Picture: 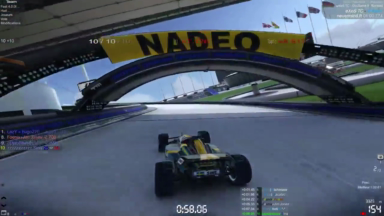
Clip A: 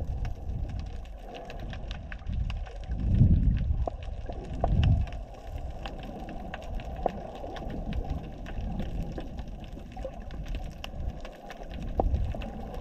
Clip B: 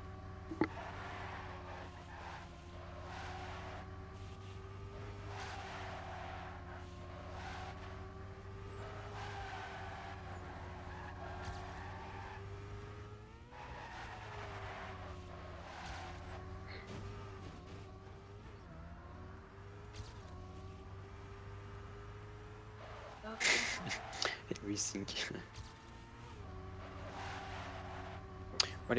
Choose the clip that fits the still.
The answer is B